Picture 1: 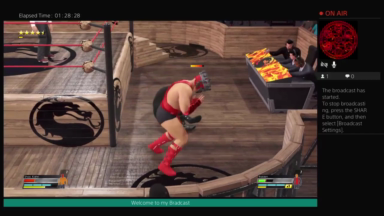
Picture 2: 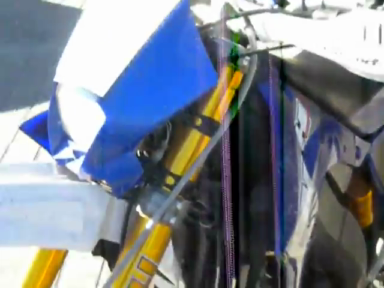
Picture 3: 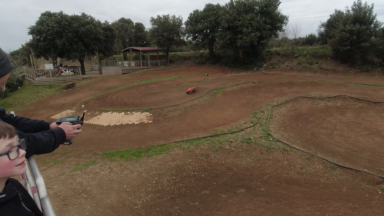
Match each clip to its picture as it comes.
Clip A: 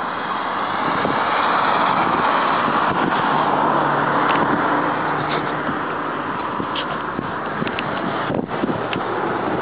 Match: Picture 2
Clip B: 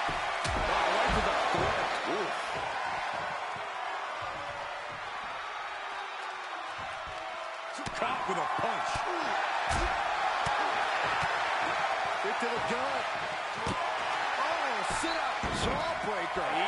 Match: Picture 1